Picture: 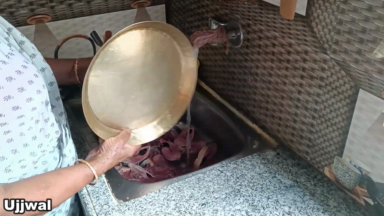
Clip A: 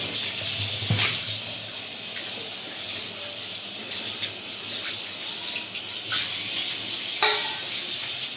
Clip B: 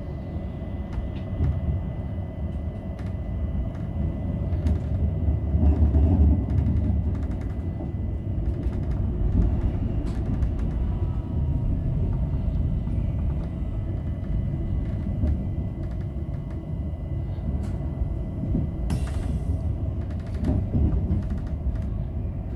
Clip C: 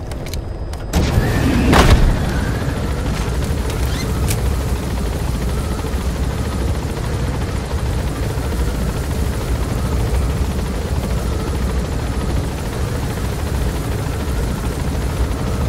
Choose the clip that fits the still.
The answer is A